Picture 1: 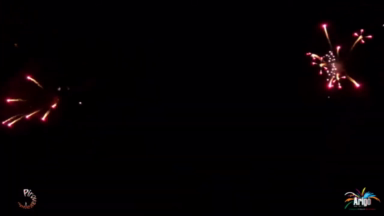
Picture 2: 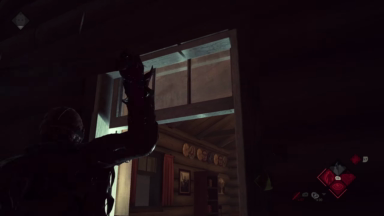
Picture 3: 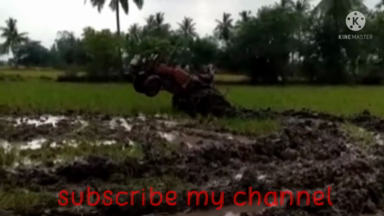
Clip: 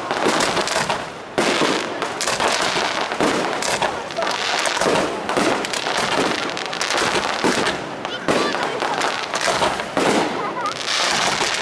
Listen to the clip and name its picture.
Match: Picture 1